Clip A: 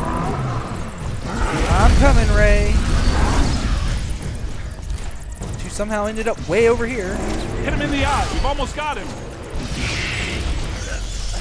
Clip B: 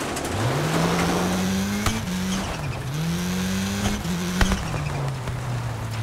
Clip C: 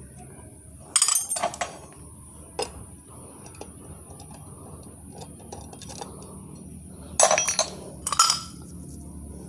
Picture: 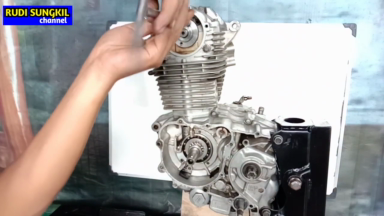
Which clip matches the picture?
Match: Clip C